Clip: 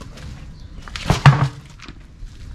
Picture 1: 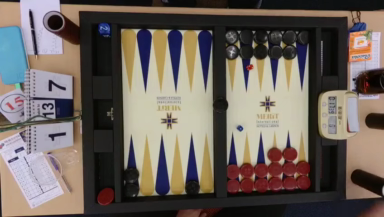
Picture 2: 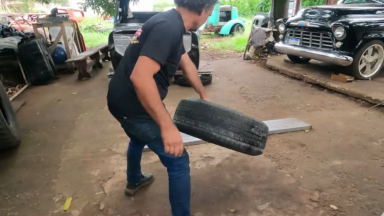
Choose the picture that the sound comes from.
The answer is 2